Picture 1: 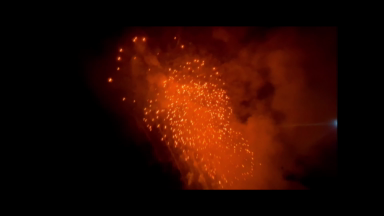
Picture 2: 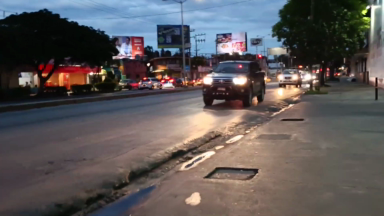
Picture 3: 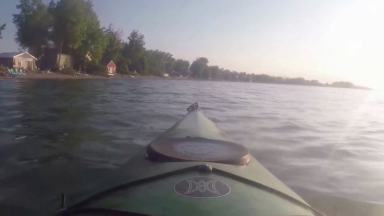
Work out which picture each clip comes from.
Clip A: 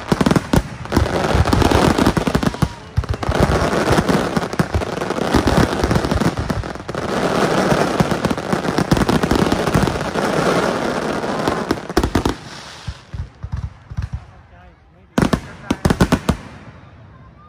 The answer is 1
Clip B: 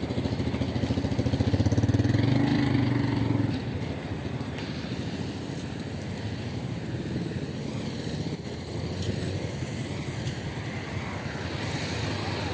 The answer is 2